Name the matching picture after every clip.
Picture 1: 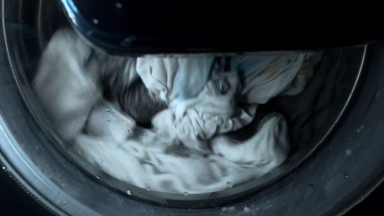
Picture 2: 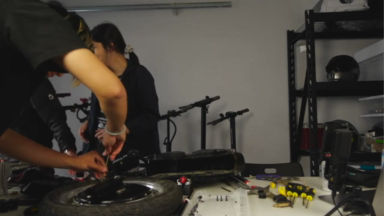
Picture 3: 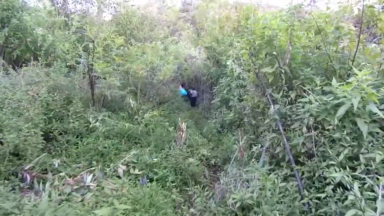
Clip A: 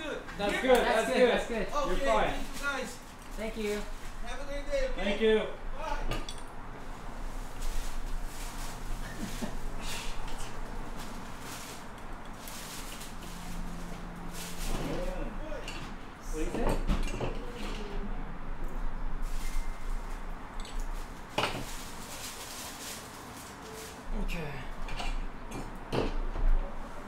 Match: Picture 2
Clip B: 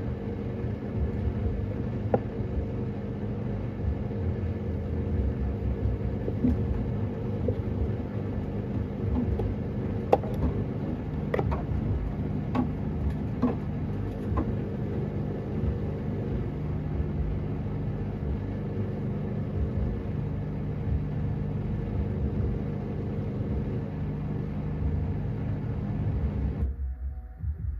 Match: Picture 1